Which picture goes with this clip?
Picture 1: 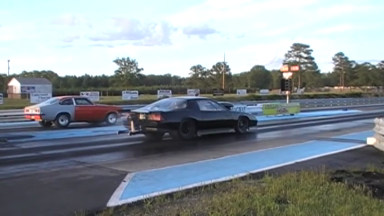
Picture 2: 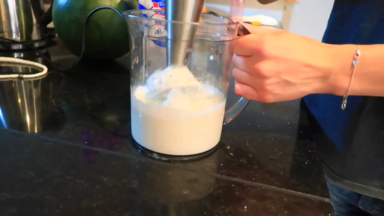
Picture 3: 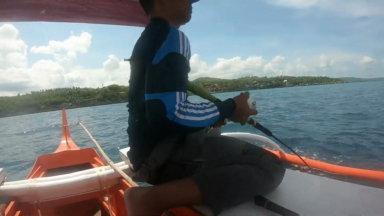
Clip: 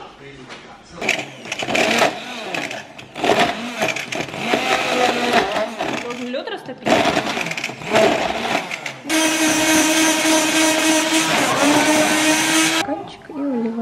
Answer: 2